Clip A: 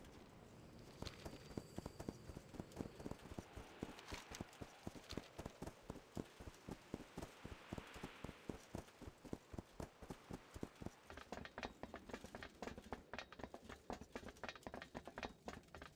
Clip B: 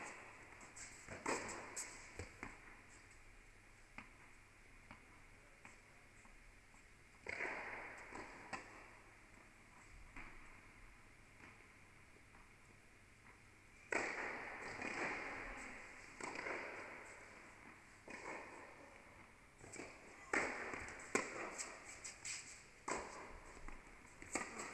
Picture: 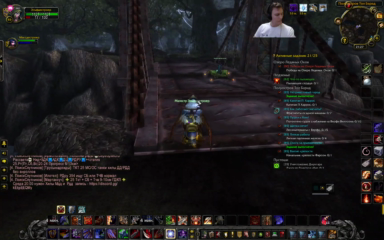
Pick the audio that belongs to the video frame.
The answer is A